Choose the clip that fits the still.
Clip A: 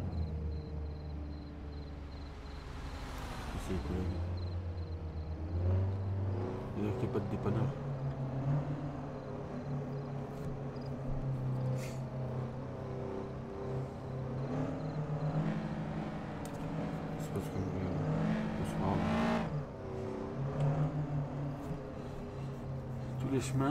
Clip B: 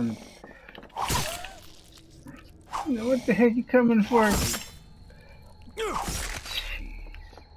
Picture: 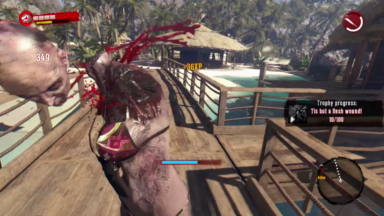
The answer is B